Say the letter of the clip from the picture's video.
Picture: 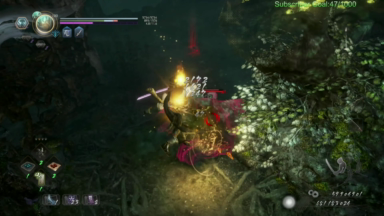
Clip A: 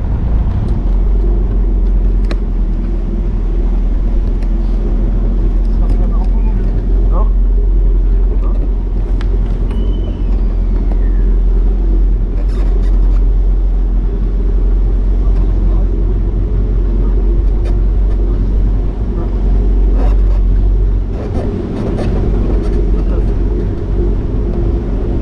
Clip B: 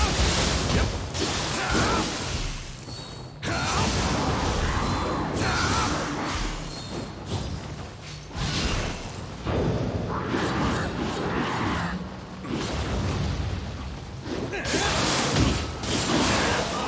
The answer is B